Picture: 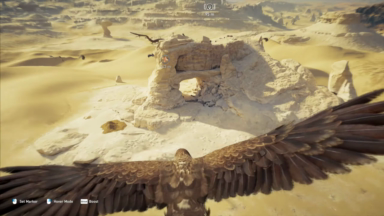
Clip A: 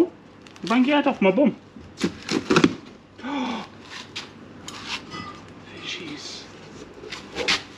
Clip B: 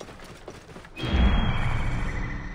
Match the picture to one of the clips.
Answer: B